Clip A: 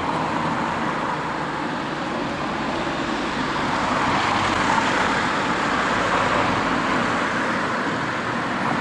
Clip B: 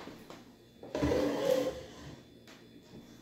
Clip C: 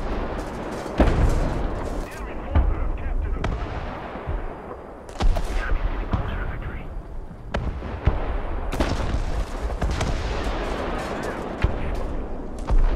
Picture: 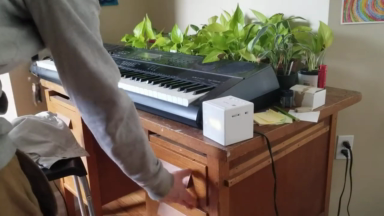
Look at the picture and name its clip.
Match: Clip B